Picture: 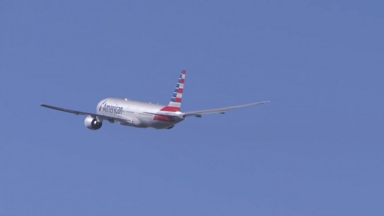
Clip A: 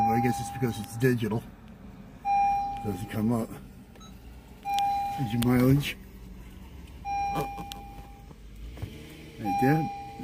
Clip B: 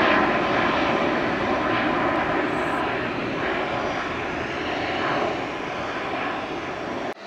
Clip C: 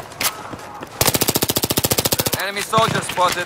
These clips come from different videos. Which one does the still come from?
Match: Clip B